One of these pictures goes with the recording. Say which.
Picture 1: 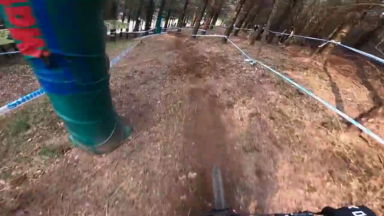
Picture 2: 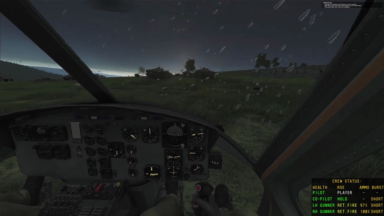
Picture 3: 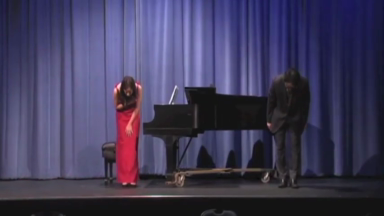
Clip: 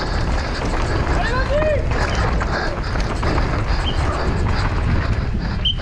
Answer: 1